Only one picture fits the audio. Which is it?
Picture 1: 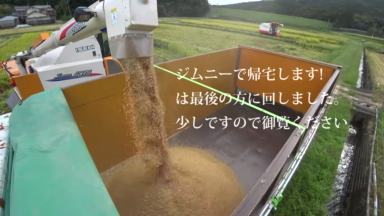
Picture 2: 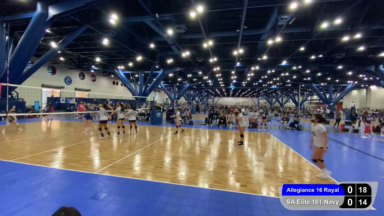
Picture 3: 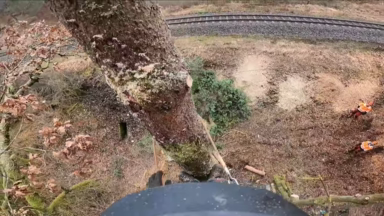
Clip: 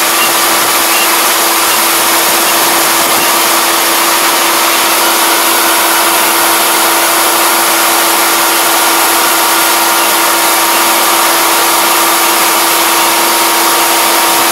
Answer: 1